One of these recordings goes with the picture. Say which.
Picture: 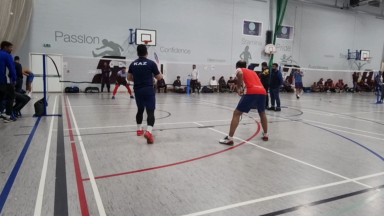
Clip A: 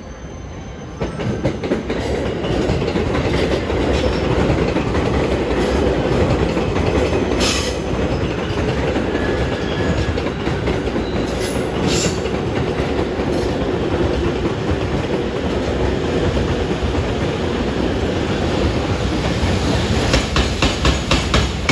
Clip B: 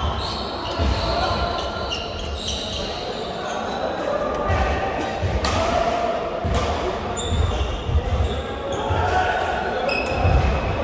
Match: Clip B